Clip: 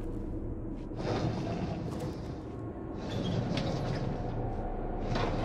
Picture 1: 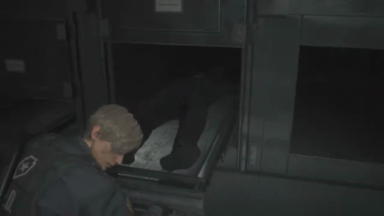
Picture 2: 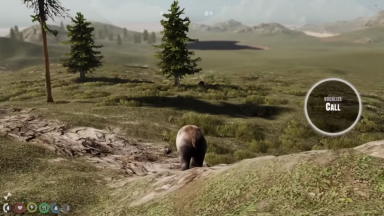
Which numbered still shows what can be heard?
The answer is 1